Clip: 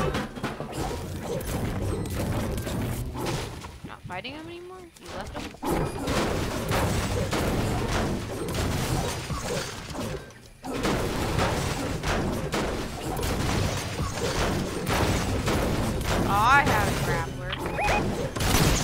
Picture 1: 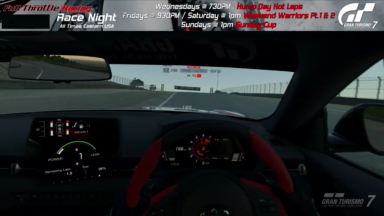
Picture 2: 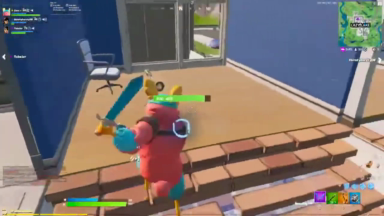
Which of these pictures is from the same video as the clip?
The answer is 2